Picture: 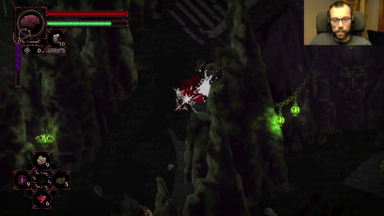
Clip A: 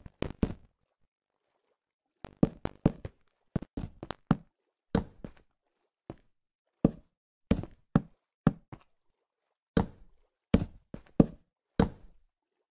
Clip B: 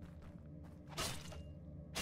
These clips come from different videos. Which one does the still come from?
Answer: B